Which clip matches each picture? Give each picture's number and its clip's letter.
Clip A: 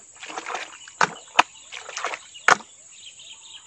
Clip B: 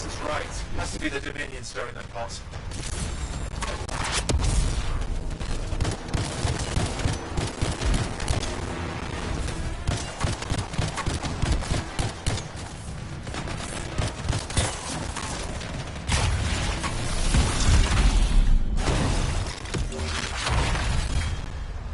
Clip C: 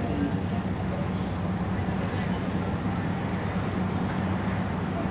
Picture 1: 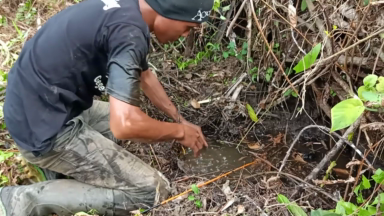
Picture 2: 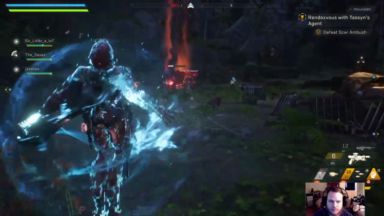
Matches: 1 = A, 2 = B